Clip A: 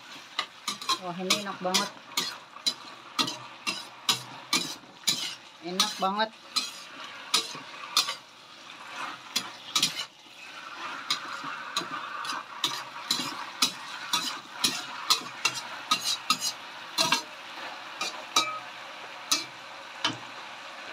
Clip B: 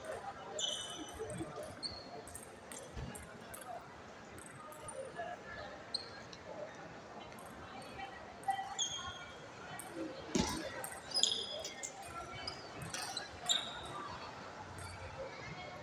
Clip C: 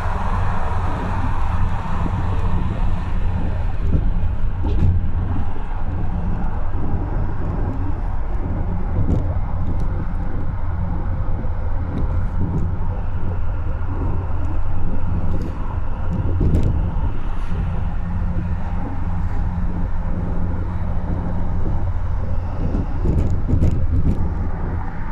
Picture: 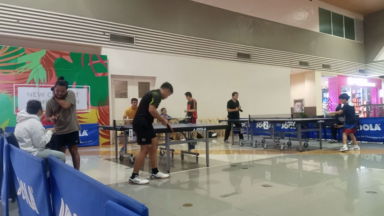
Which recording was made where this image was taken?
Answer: B